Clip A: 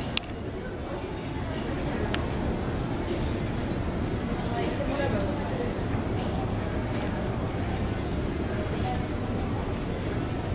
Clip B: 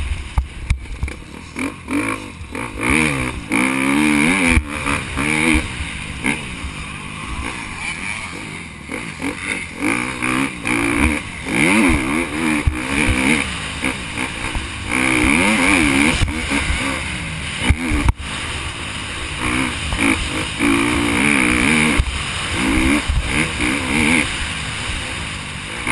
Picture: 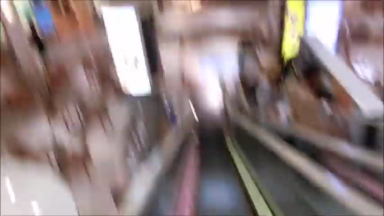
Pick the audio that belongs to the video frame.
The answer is A